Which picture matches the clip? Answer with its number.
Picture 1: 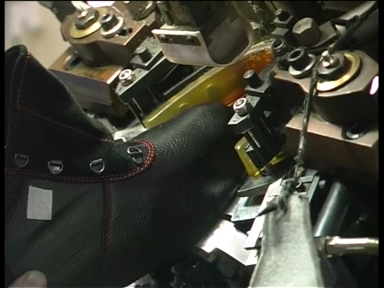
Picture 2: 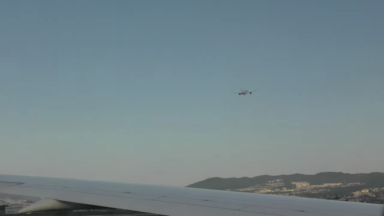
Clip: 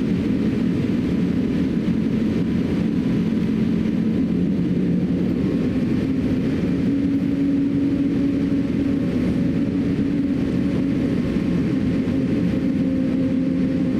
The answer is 2